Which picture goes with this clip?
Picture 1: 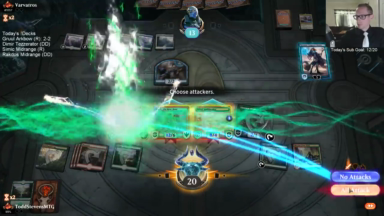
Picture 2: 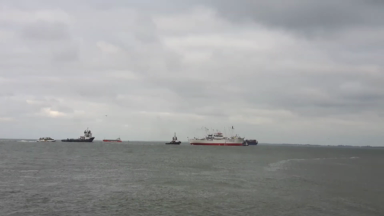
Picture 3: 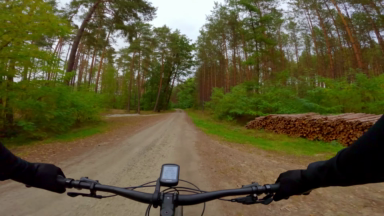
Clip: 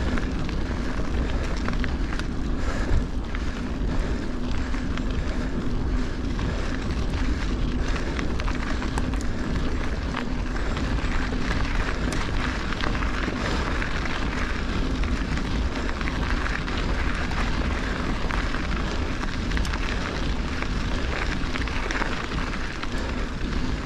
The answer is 3